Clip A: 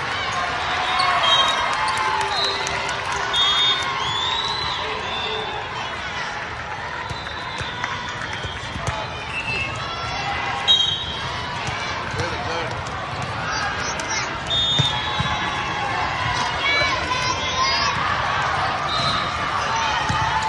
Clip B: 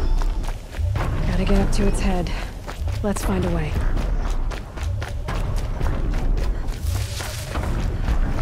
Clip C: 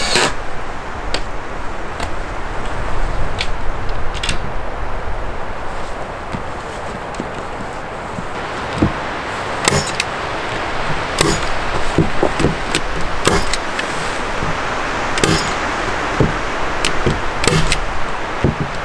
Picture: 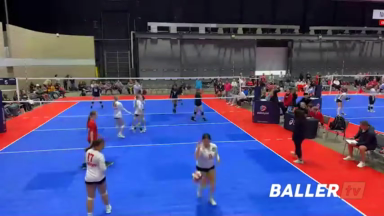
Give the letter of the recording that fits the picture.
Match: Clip A